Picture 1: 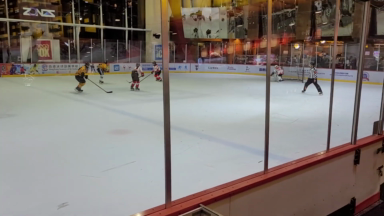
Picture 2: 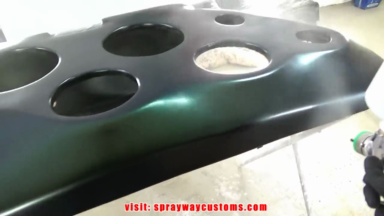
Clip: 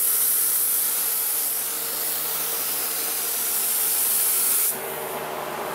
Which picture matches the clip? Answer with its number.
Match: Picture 2